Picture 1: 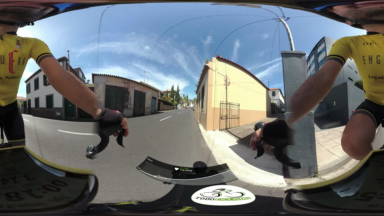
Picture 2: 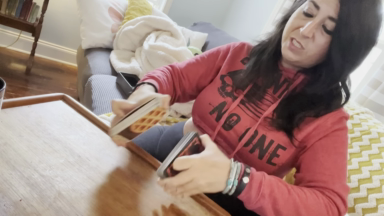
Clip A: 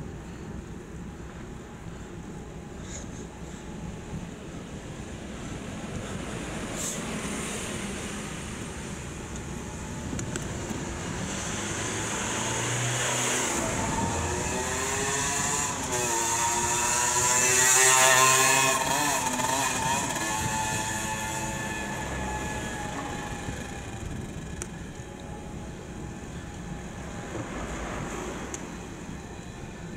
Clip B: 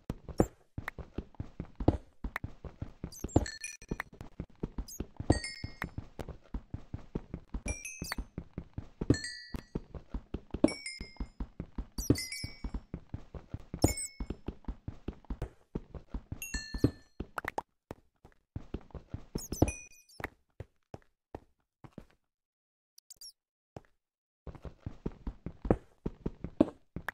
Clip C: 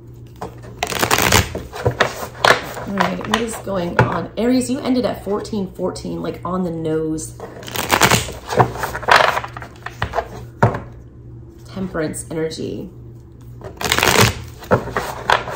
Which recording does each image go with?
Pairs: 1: A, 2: C